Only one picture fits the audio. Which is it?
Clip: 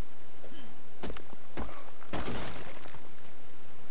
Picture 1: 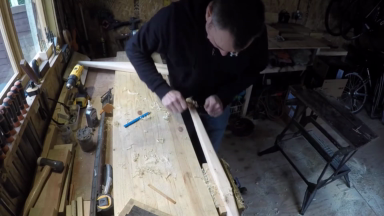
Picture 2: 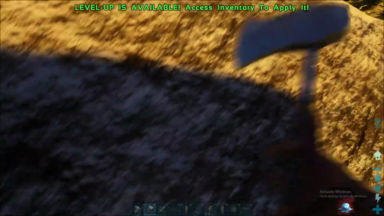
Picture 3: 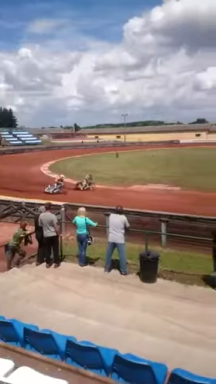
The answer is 2